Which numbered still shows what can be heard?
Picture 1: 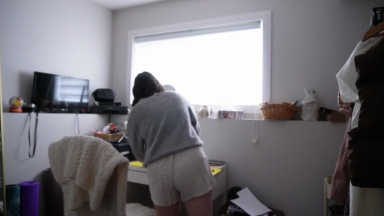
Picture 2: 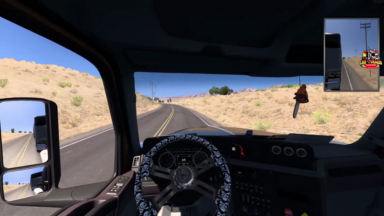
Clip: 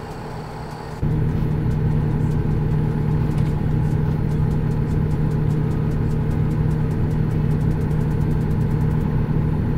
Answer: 2